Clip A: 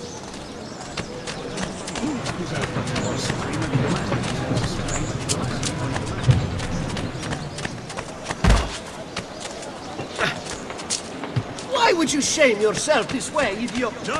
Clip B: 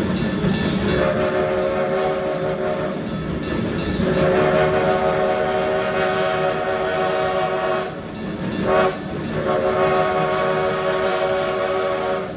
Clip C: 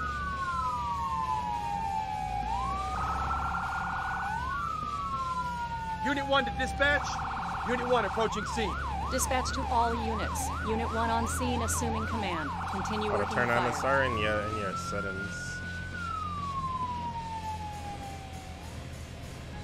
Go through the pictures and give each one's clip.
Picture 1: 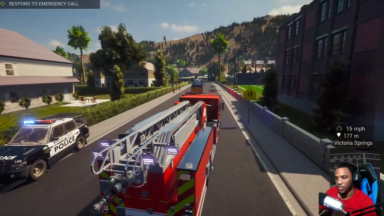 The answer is C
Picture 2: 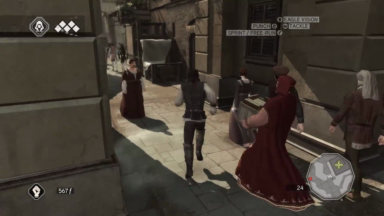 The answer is A